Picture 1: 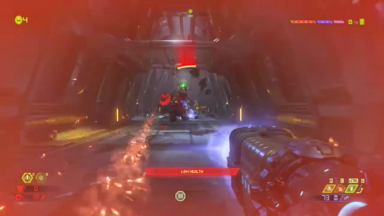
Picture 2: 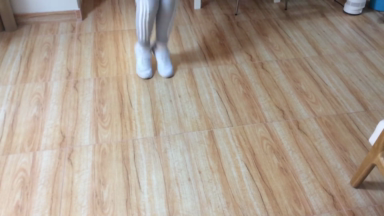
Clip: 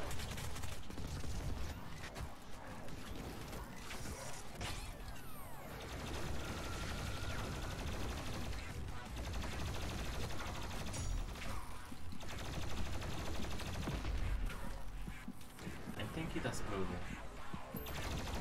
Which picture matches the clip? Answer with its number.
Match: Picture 1